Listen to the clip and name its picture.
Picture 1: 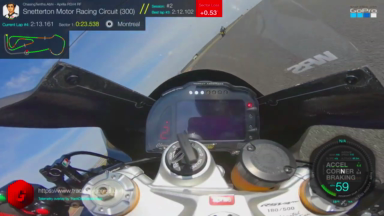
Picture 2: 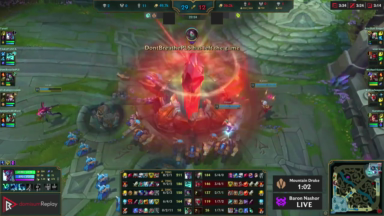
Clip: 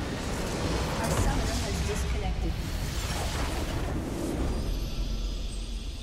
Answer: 2